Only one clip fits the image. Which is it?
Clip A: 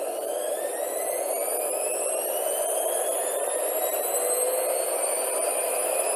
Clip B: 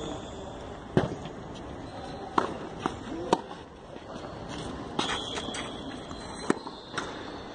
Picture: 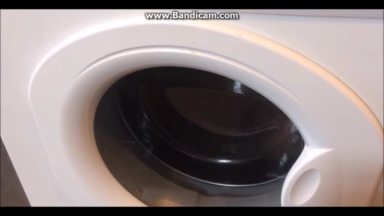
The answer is A